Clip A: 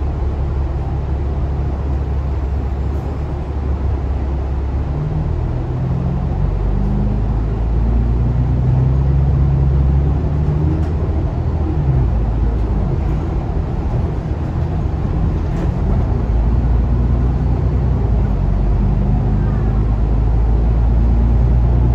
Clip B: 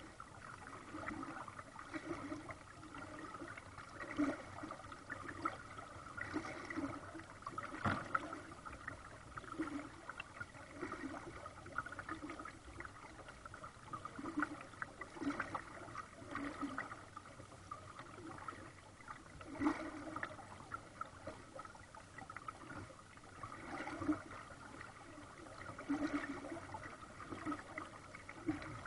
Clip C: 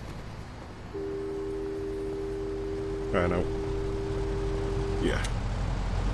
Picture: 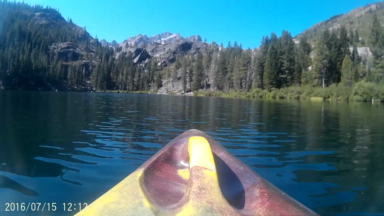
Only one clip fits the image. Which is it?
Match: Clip B